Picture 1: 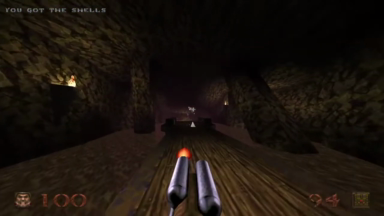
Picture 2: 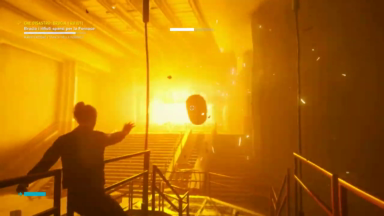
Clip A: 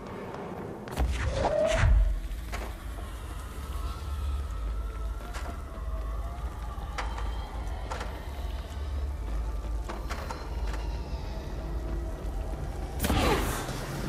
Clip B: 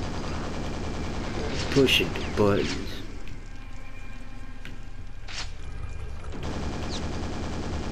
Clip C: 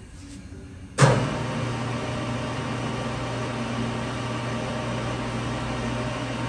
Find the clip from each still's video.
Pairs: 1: B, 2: A